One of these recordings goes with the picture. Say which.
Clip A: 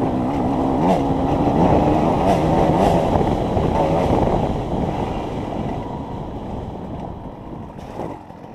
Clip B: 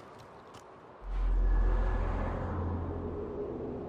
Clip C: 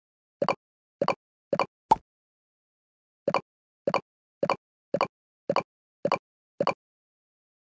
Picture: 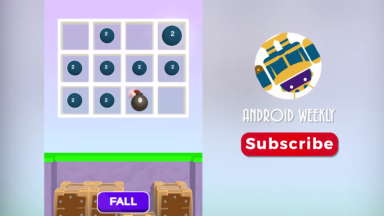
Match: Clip C